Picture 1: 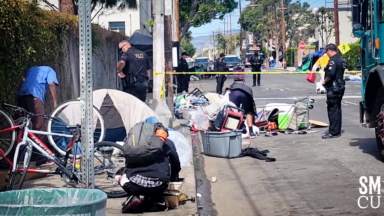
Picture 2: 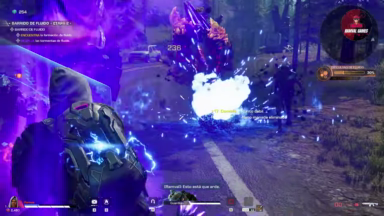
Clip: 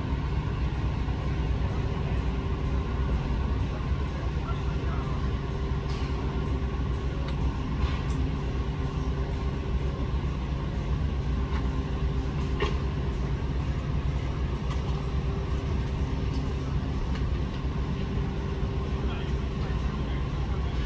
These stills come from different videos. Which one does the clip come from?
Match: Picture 1